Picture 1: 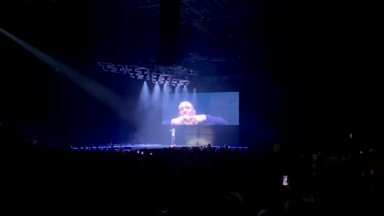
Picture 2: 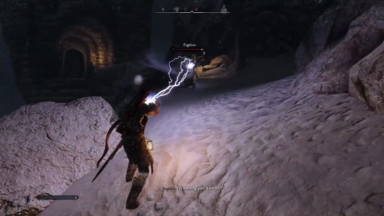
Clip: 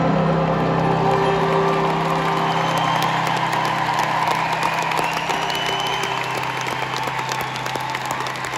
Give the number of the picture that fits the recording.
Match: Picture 1